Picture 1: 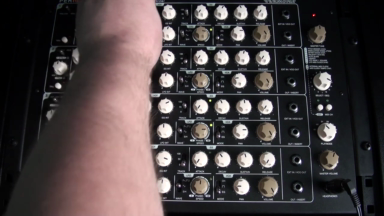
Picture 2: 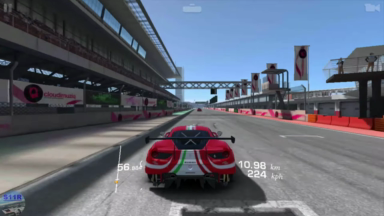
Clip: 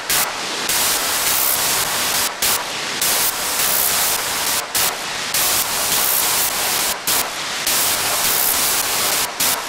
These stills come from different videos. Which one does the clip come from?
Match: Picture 1